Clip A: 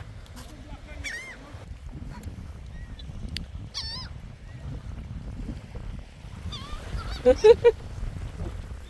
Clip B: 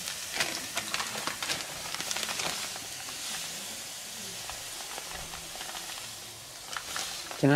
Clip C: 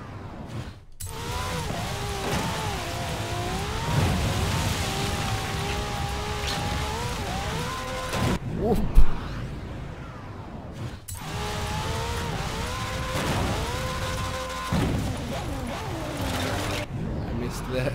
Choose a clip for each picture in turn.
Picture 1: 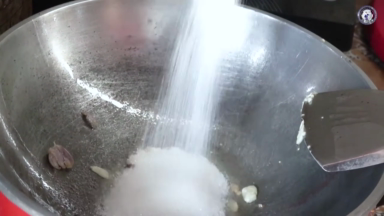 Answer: B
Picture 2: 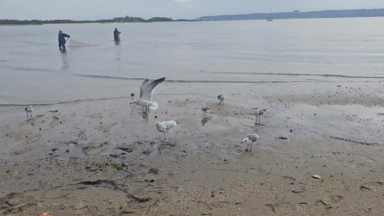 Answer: A